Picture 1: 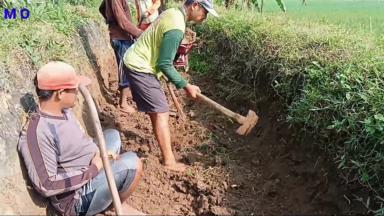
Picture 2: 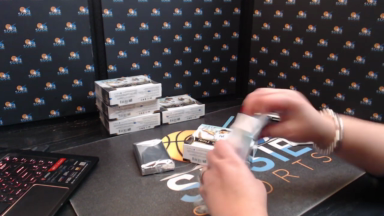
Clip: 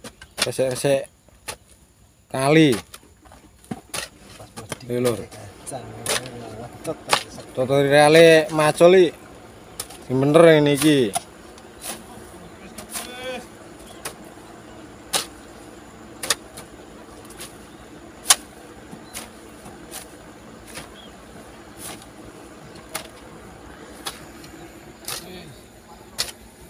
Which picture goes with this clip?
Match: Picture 1